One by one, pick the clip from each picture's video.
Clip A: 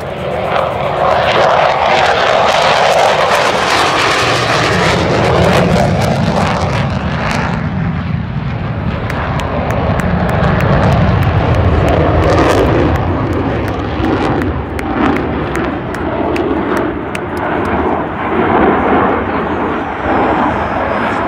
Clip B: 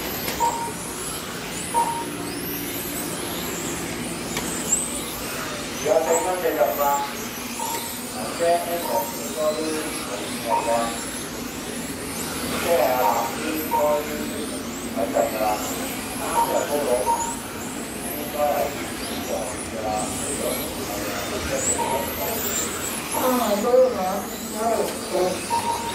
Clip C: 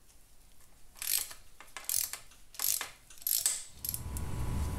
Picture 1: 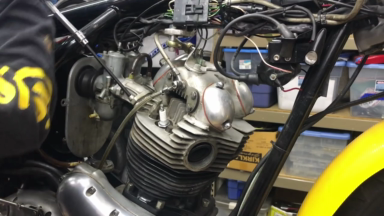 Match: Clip C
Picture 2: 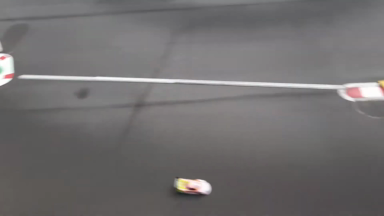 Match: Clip B